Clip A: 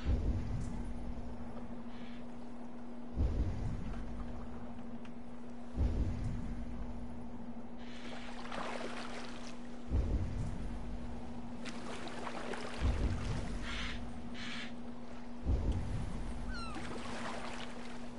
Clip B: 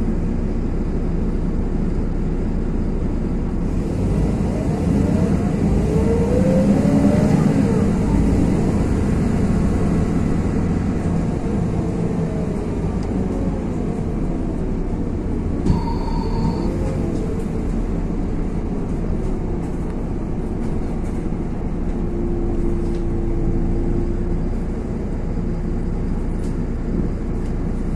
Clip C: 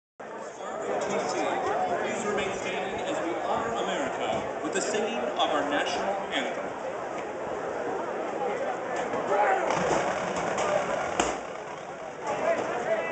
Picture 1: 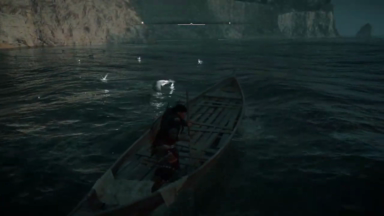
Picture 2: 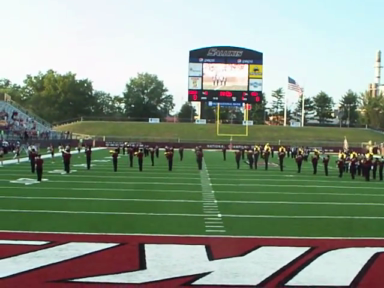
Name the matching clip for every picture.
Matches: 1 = A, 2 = C